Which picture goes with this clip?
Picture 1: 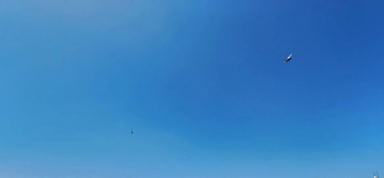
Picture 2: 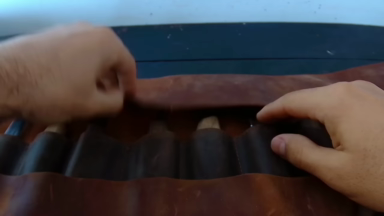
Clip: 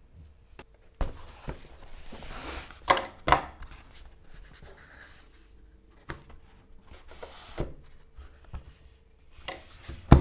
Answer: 2